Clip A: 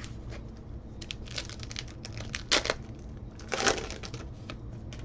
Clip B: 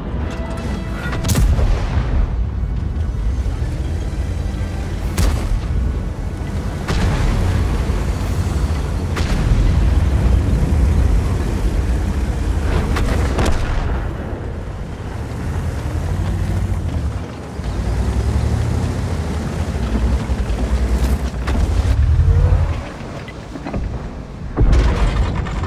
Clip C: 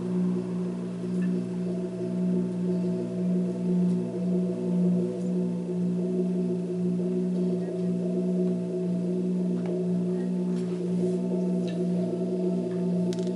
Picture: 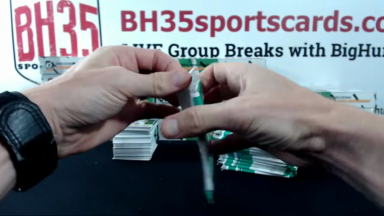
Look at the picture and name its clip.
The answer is A